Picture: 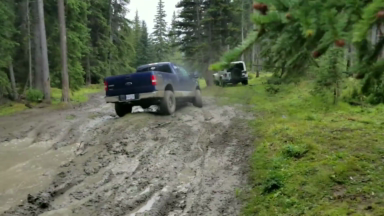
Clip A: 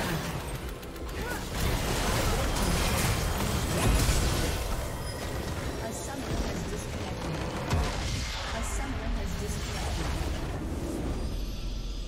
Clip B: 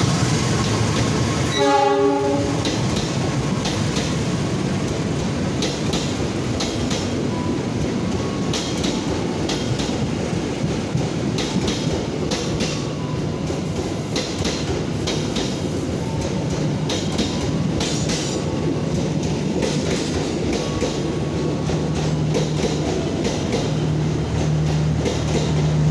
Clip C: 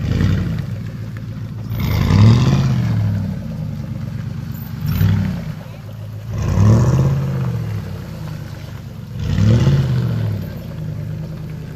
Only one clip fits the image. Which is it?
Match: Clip C